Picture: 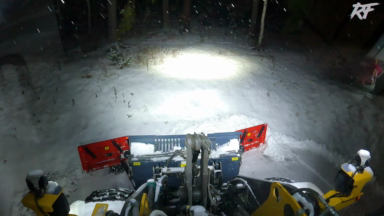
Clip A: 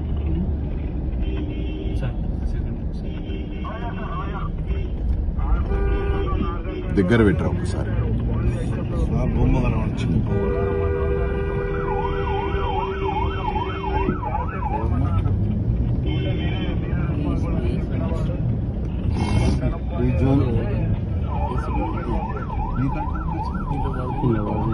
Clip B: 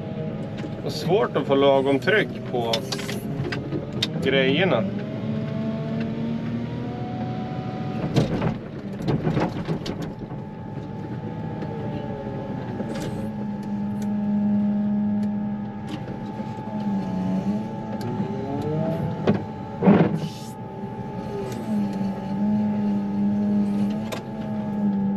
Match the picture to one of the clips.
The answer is B